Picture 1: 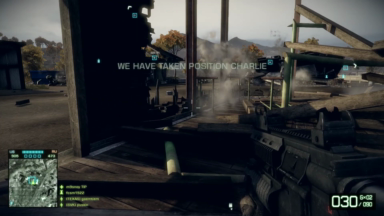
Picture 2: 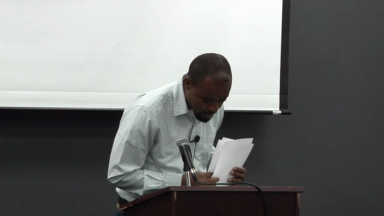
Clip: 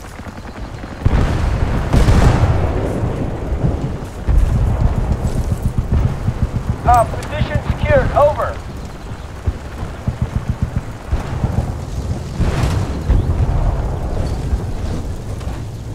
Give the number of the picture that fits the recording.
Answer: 1